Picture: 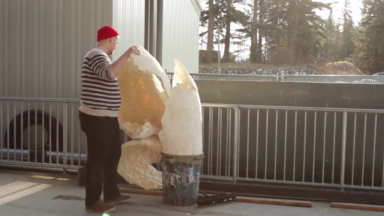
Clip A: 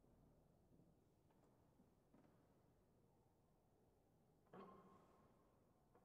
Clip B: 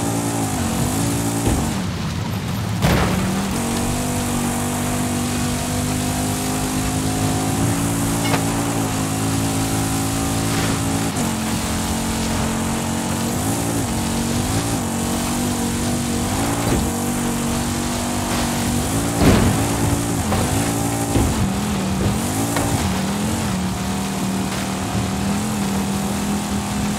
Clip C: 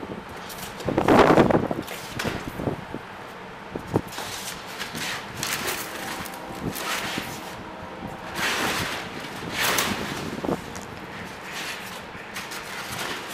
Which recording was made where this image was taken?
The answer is C